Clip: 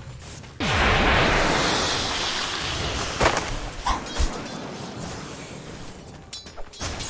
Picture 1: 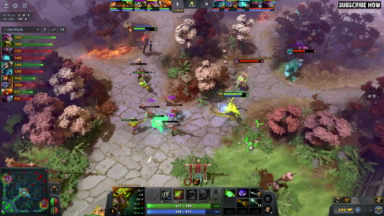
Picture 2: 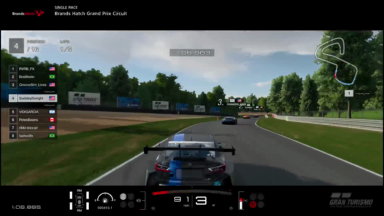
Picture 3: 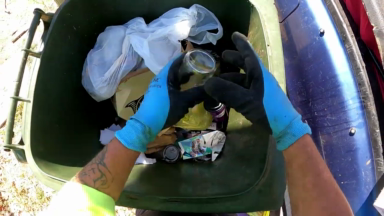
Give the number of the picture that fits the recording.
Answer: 1